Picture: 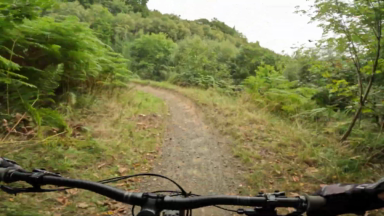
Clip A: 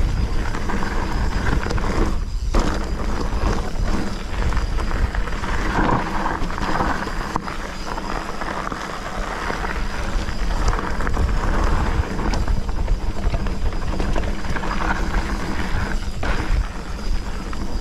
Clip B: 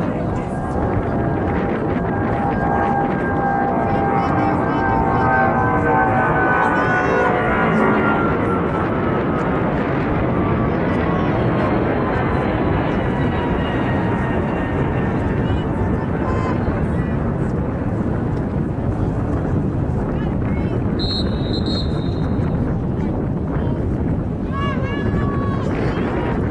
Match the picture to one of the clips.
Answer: A